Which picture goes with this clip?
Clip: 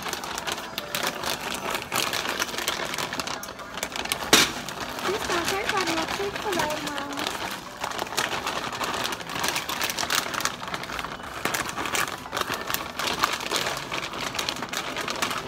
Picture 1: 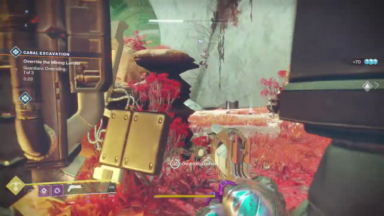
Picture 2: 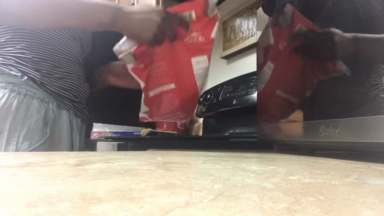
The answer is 2